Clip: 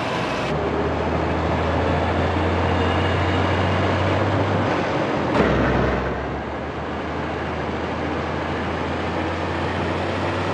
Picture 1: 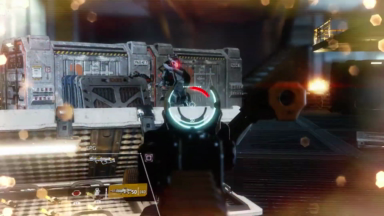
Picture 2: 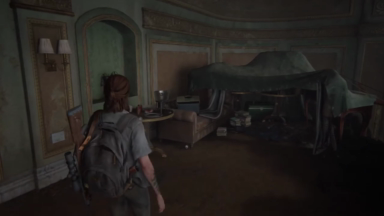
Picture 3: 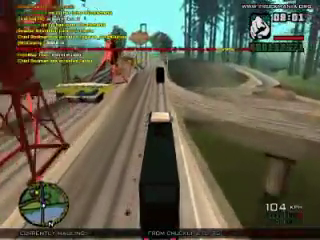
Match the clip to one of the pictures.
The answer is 3